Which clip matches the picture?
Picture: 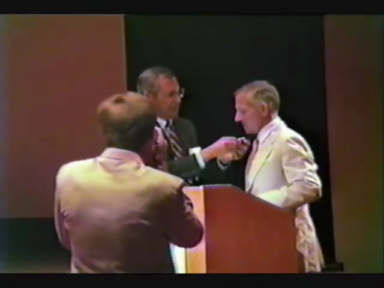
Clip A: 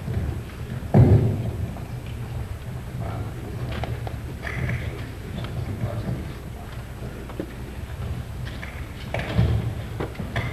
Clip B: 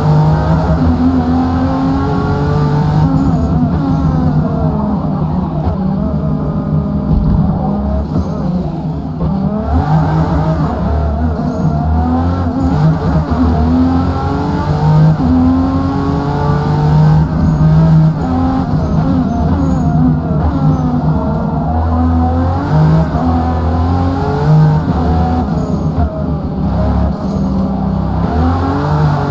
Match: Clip A